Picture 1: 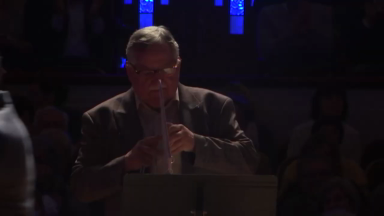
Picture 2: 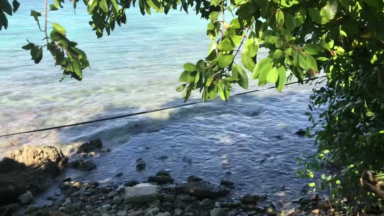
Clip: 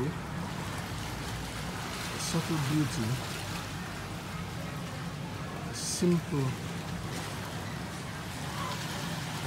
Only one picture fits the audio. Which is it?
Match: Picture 2